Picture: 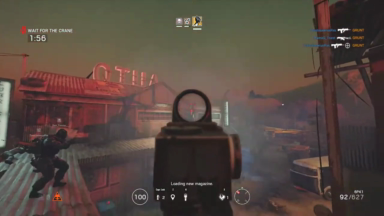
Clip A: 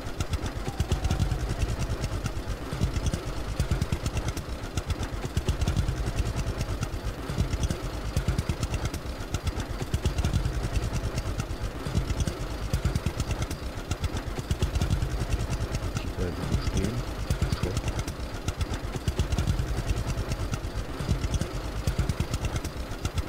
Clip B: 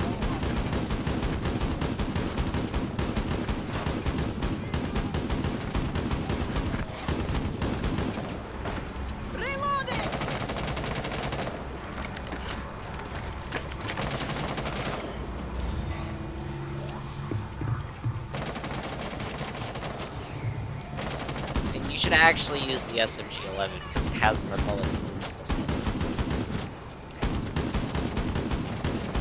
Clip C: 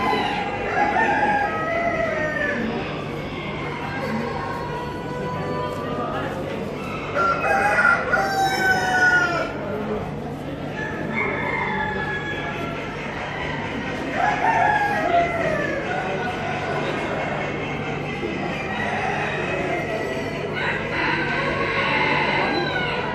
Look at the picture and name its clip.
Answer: B